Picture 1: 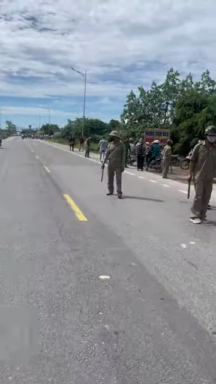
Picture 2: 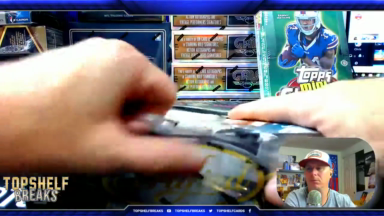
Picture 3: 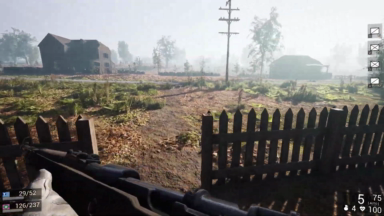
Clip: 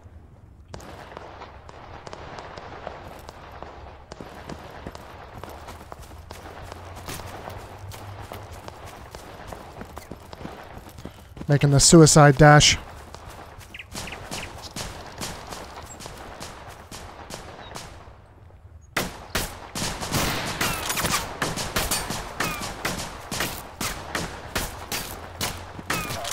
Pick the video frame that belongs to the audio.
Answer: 3